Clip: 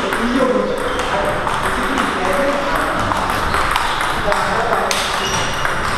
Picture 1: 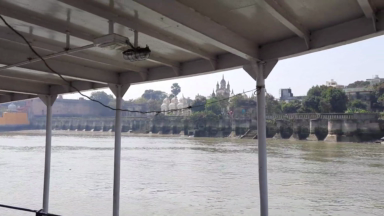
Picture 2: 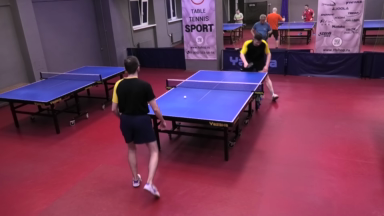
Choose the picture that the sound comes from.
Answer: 2